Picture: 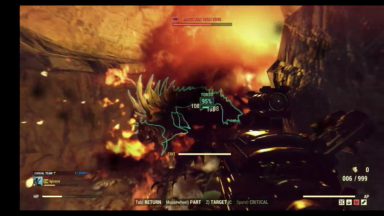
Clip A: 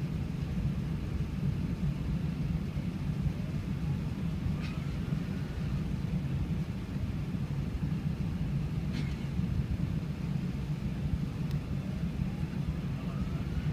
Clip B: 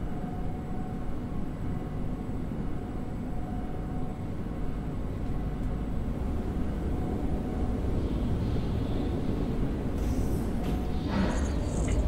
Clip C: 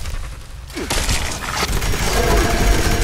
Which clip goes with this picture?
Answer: C